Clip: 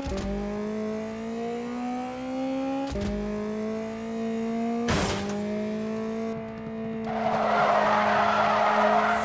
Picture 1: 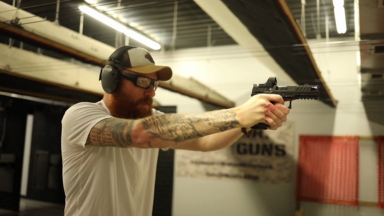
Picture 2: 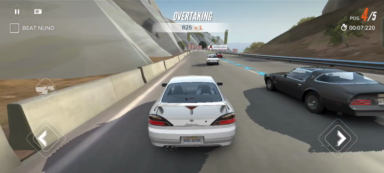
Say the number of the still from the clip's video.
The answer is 2